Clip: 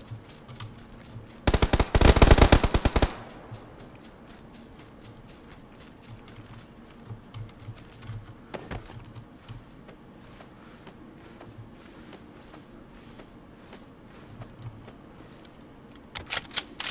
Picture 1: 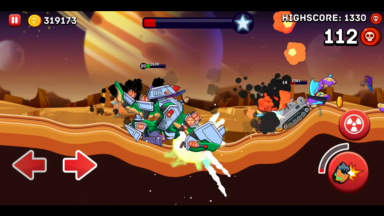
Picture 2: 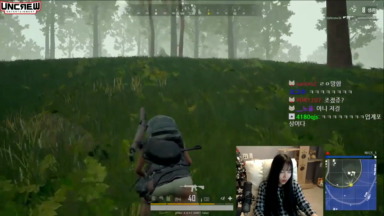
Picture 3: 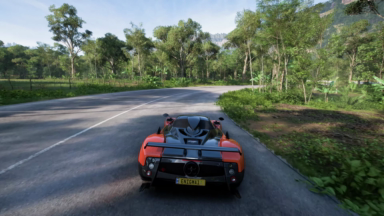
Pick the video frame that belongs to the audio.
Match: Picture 2